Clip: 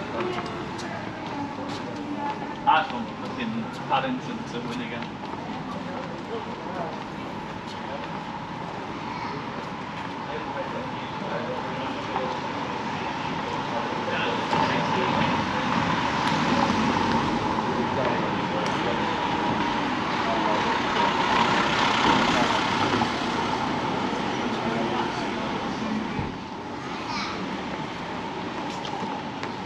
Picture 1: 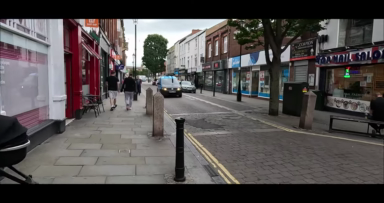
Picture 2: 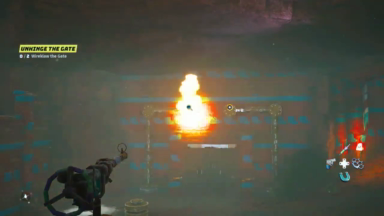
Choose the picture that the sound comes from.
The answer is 1